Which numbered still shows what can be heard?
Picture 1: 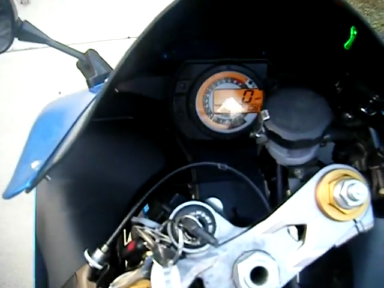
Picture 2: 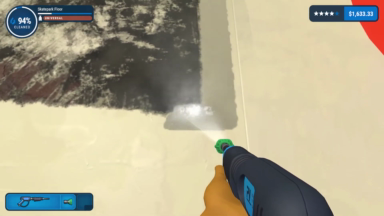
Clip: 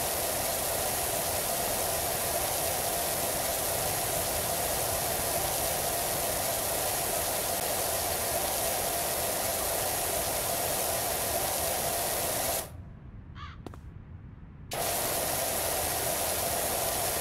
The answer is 2